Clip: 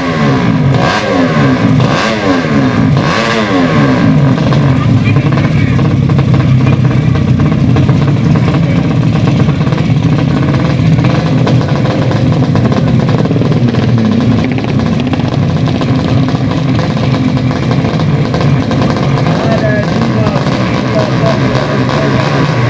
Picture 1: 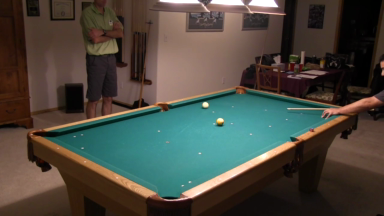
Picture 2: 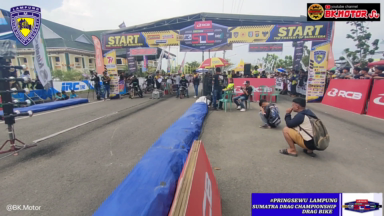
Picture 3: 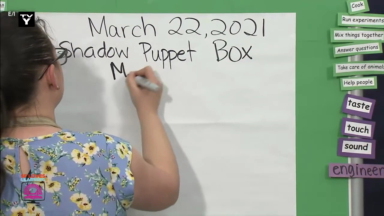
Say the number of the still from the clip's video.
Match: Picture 2